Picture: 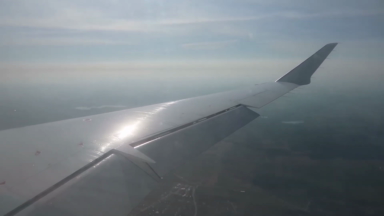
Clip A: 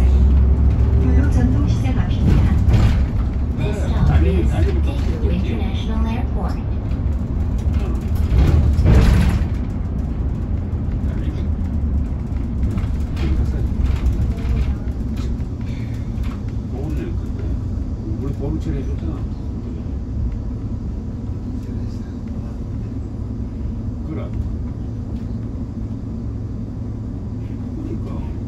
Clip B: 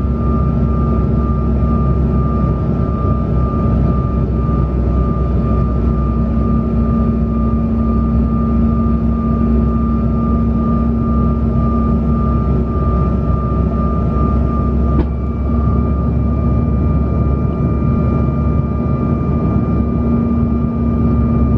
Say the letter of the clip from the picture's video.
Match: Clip B